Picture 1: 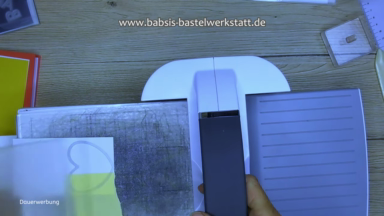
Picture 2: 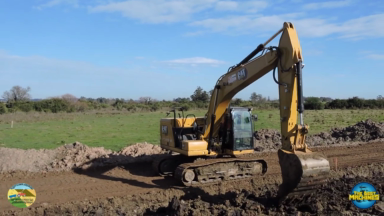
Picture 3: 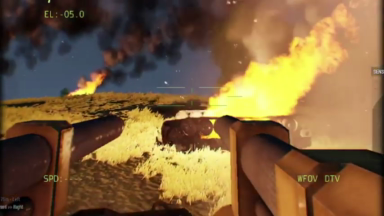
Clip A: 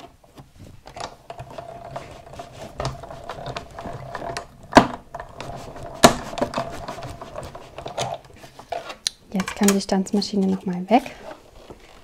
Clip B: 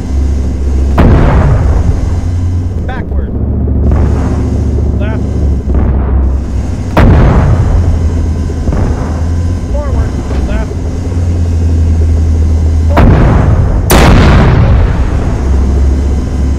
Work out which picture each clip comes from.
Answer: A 1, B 3